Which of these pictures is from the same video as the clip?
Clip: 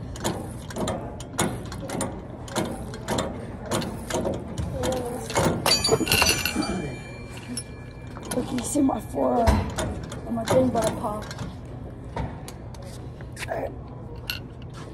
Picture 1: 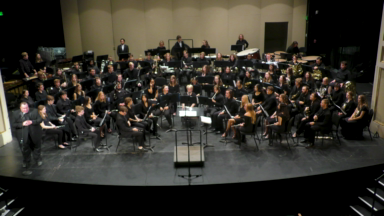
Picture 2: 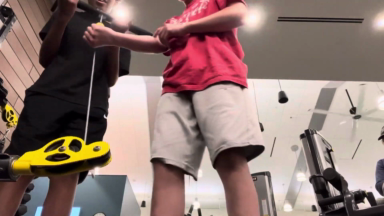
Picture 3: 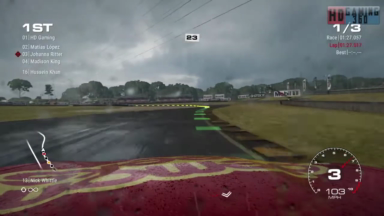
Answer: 2